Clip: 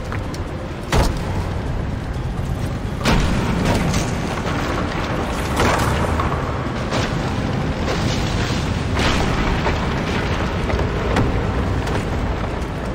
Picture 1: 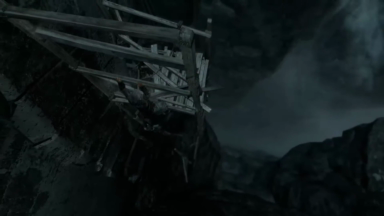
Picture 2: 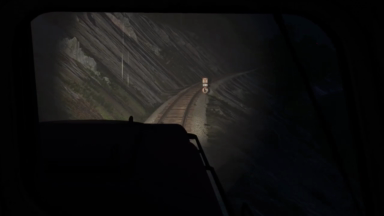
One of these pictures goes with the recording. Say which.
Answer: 1